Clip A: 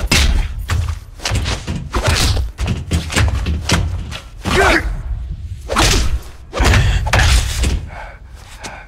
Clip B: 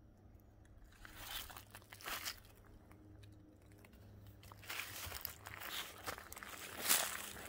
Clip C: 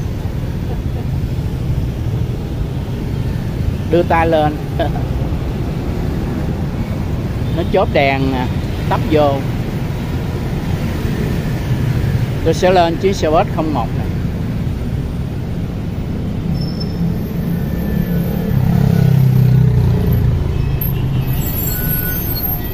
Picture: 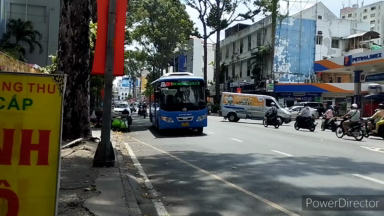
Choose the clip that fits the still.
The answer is C